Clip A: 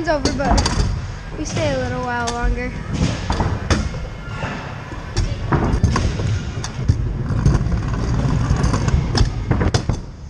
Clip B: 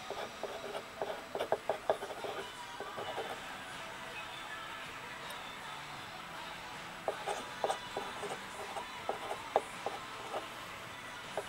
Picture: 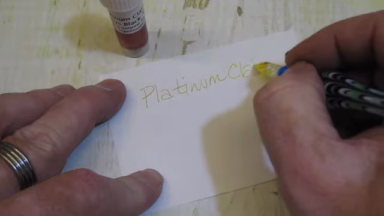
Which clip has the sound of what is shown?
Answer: B